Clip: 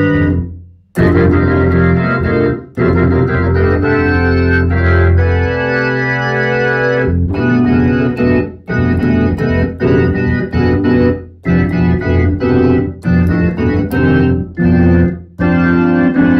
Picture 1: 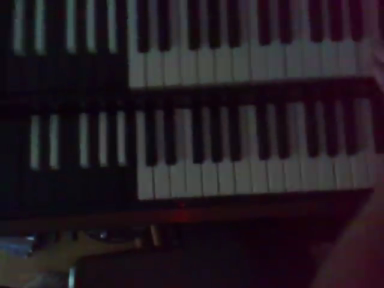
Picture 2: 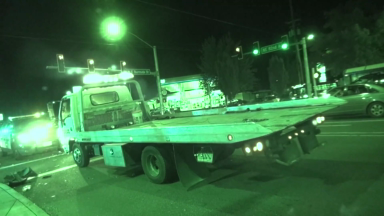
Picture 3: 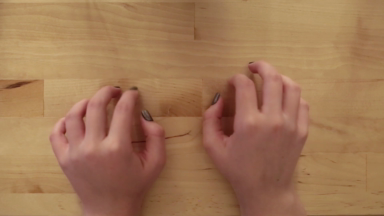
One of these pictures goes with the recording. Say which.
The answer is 1